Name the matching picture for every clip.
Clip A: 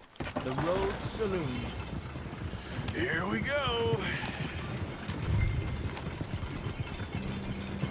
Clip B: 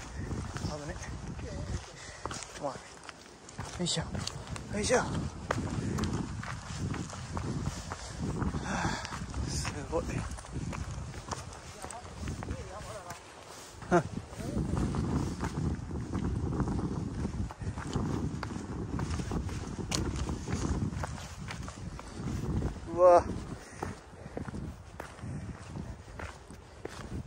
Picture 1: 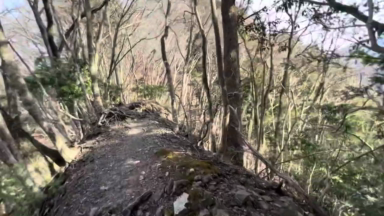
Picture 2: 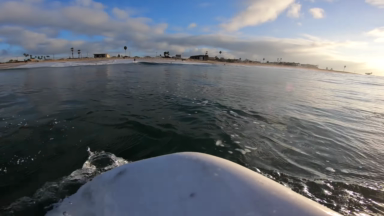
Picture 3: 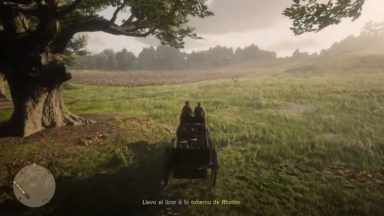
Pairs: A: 3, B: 1